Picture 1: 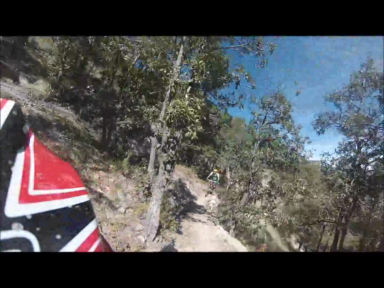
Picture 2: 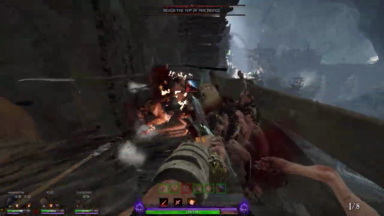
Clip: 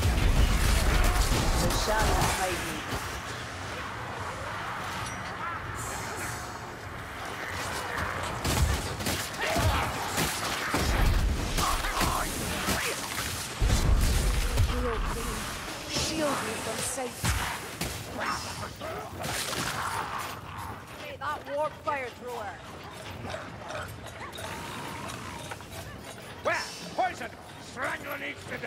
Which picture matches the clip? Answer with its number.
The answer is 2